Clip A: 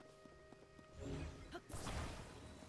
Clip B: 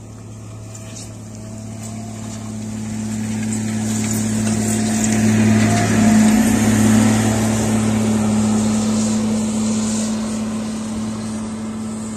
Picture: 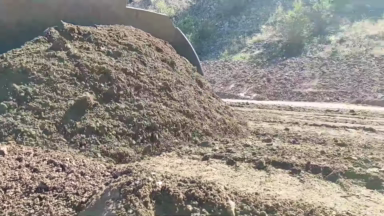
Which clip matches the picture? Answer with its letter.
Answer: B